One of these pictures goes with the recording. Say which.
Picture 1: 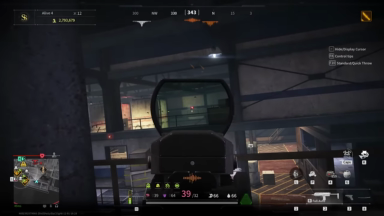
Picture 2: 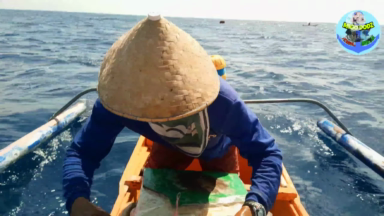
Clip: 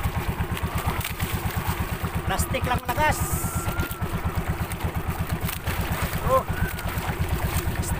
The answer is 2